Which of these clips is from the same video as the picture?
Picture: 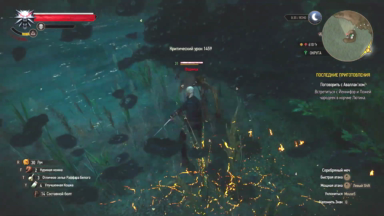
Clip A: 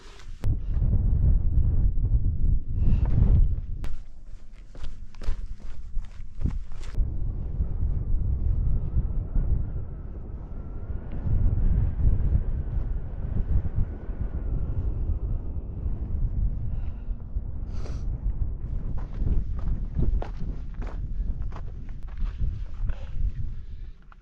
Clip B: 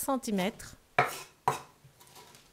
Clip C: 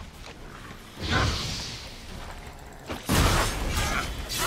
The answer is C